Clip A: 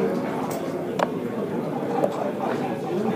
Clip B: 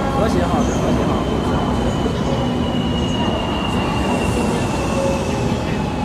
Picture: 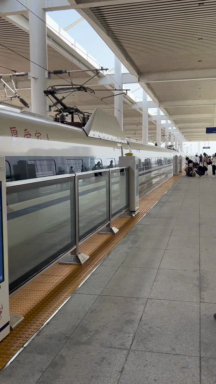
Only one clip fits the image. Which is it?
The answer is B